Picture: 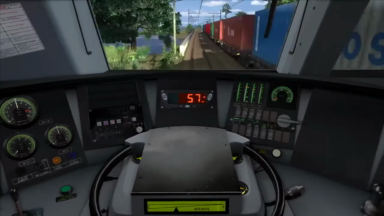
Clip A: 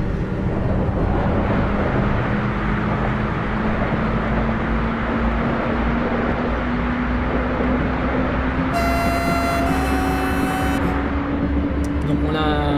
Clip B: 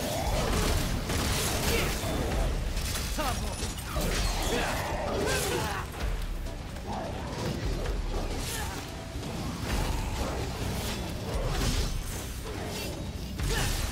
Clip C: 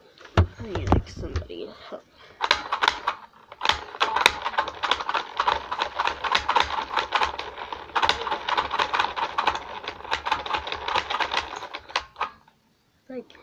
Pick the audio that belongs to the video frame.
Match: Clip A